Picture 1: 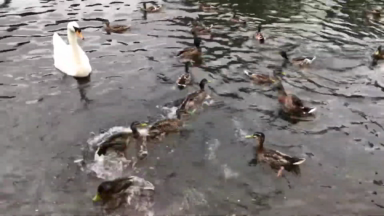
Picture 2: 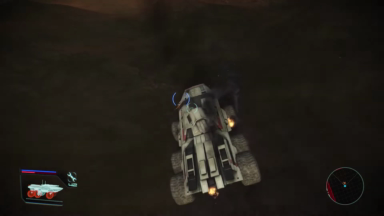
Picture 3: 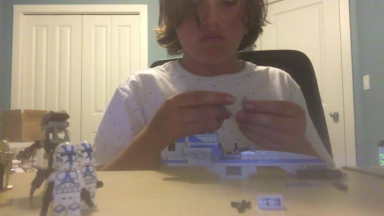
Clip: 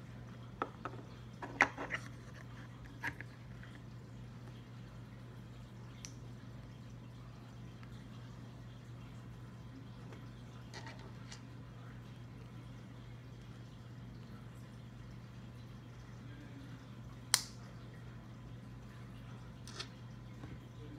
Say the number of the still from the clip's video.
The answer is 3